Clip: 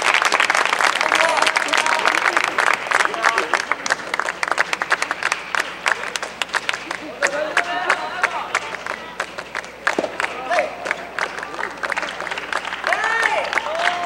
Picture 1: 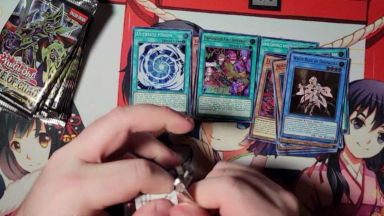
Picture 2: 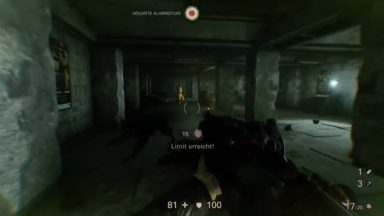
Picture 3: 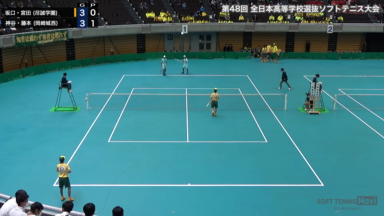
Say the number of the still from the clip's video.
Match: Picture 3